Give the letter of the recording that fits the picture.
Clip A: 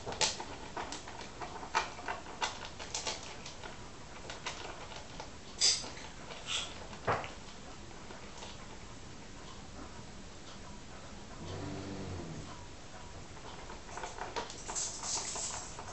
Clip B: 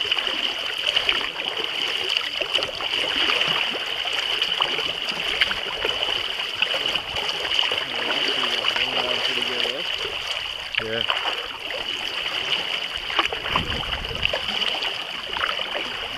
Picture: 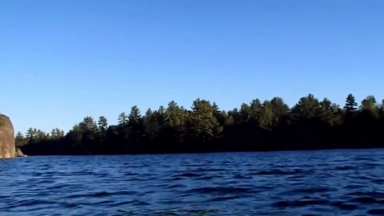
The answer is B